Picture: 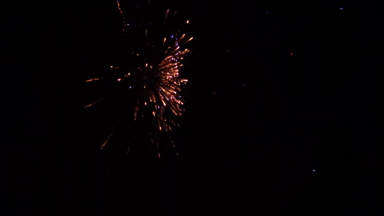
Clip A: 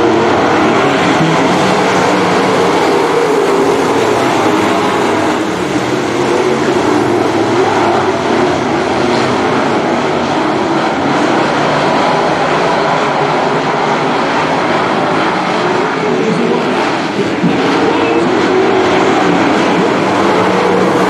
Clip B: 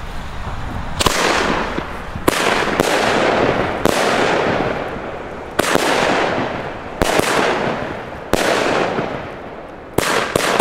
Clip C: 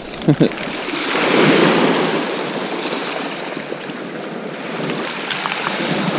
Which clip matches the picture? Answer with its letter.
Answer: B